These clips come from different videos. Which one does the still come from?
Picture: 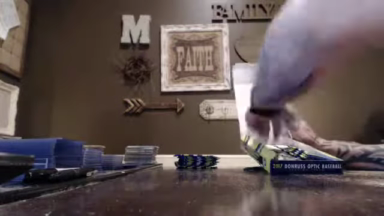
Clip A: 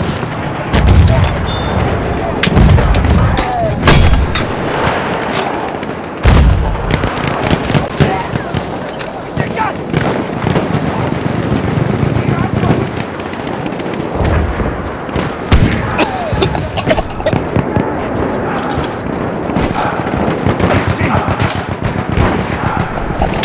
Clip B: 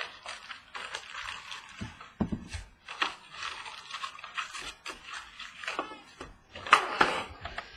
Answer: B